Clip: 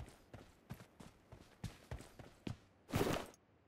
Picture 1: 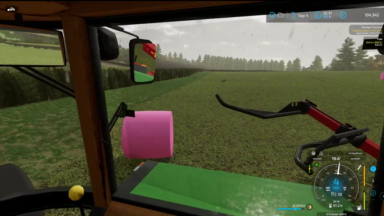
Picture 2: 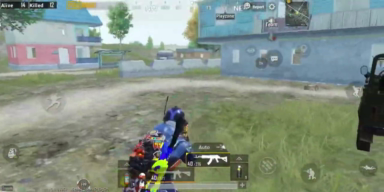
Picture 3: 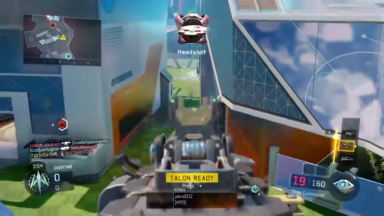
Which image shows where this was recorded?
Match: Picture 2